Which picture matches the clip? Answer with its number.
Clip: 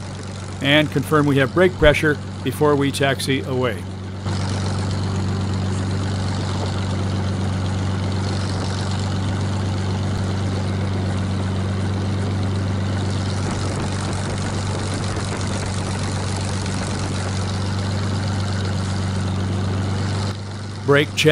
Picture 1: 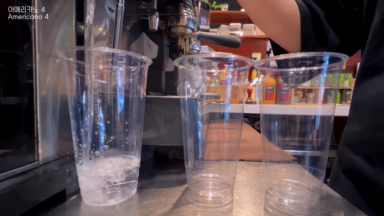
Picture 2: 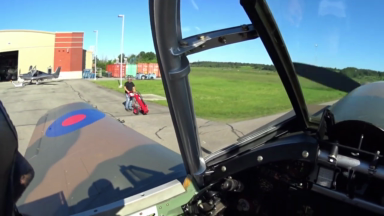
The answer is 2